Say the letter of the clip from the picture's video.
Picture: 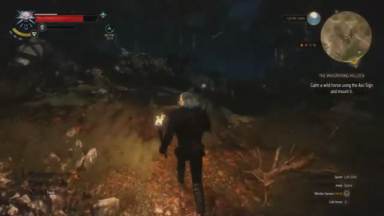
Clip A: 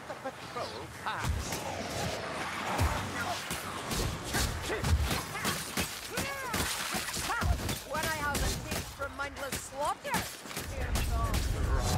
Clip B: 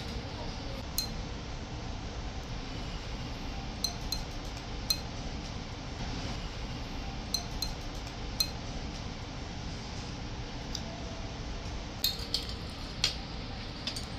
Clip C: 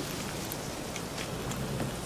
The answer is C